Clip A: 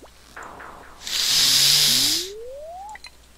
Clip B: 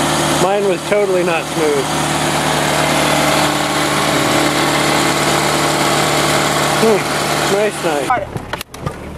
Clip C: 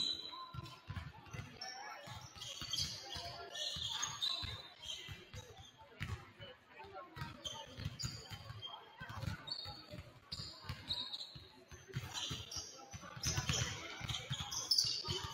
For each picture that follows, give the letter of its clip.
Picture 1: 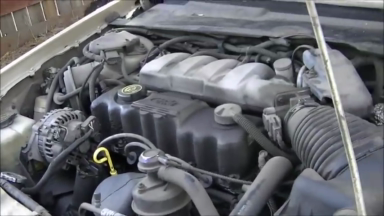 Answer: B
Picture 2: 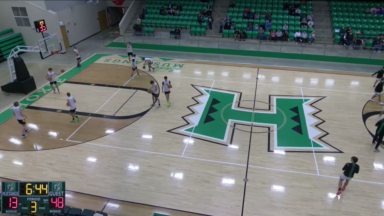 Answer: C